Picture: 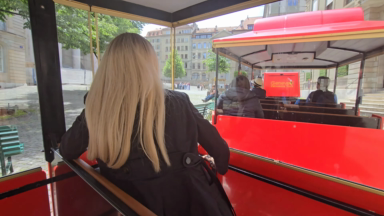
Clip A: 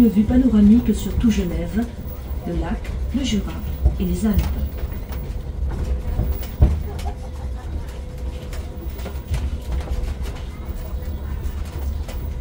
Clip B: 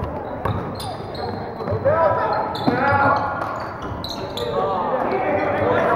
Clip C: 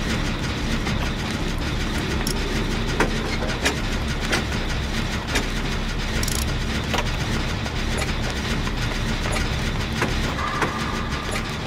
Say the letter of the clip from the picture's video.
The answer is A